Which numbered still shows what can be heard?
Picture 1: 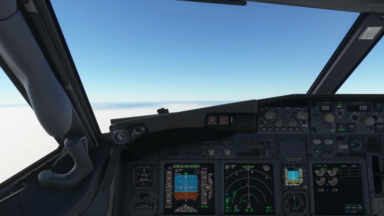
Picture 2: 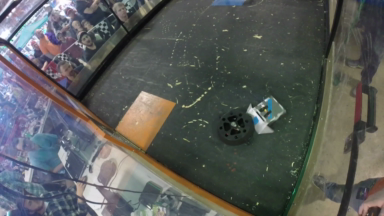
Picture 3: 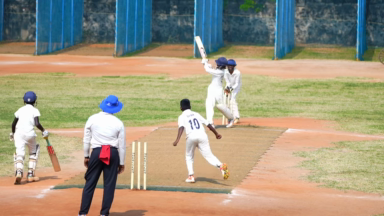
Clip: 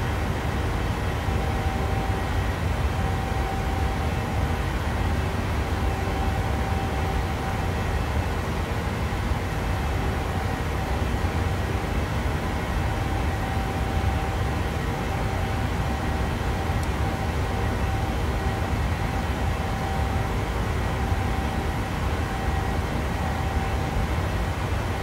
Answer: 1